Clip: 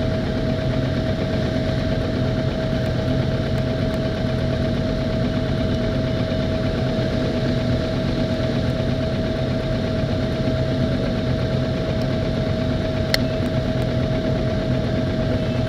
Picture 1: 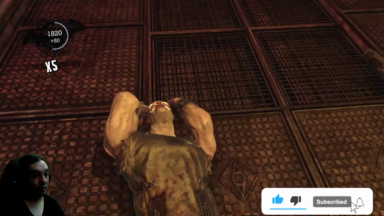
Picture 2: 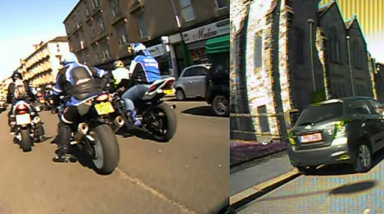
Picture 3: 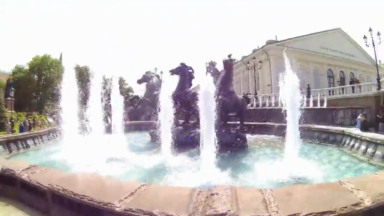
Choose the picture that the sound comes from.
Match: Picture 2